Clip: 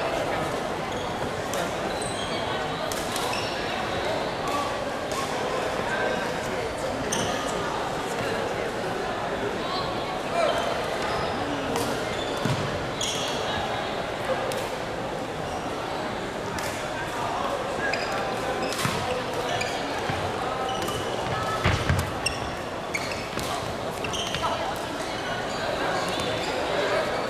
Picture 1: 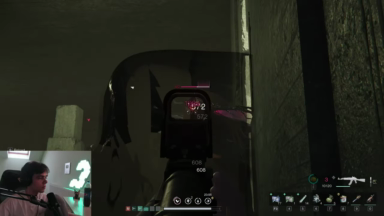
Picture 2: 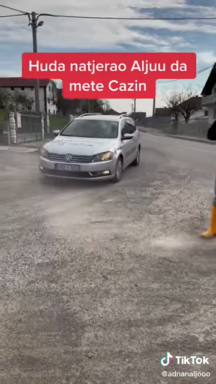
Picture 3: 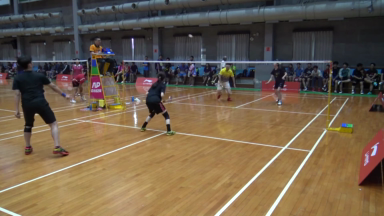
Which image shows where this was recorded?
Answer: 3